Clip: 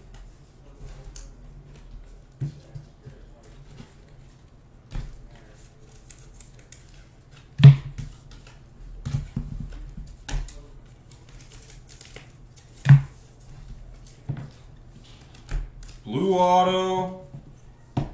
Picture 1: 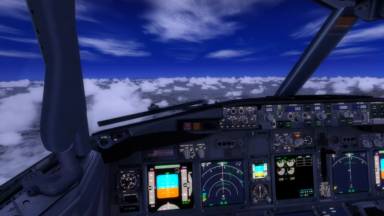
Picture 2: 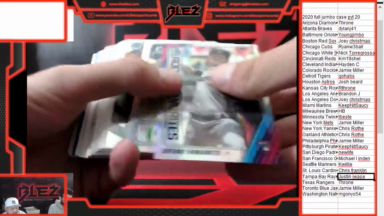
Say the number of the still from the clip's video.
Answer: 2